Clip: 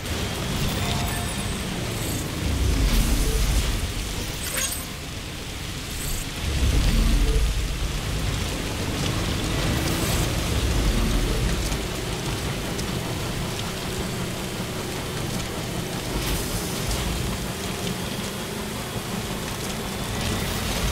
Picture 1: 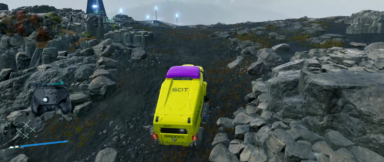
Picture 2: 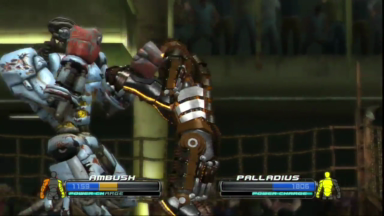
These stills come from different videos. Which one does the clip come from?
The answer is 1